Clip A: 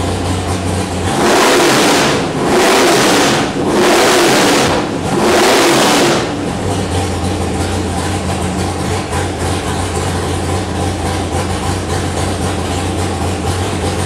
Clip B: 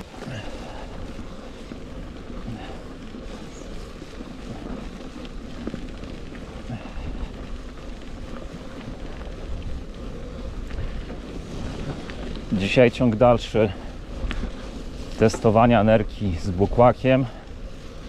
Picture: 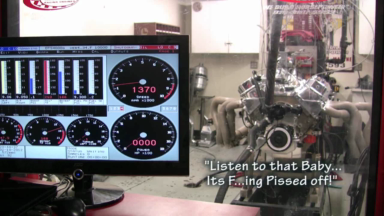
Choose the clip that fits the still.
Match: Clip A